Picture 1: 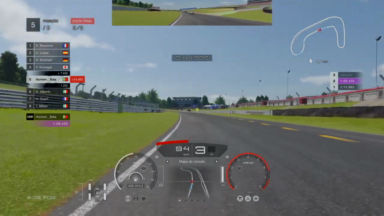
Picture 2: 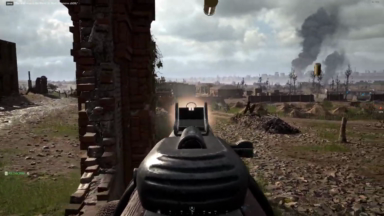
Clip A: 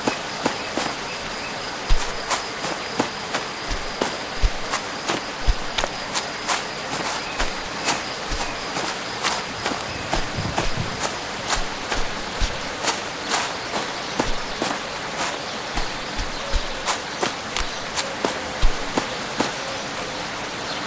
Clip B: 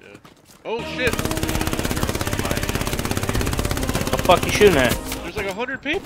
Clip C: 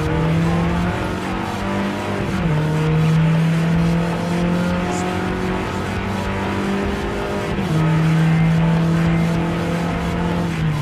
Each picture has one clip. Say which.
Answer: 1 C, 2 B